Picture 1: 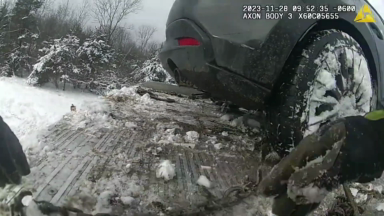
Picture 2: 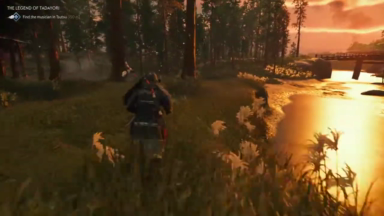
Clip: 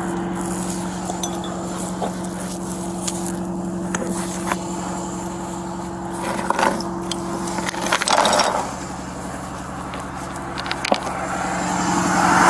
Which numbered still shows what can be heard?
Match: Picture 1